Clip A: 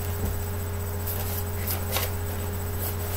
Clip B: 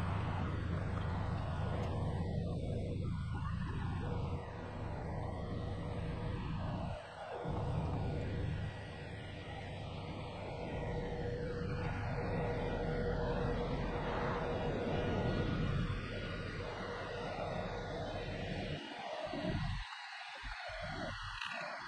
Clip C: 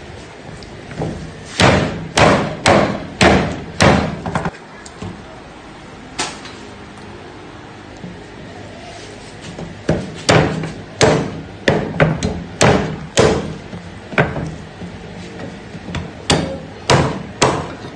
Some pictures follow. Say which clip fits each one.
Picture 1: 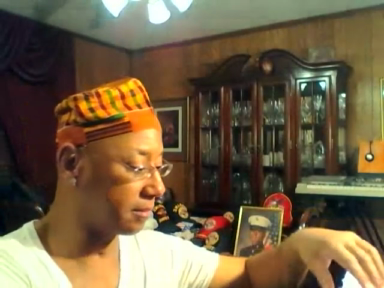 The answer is A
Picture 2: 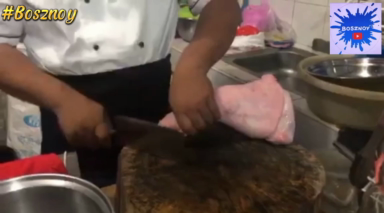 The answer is C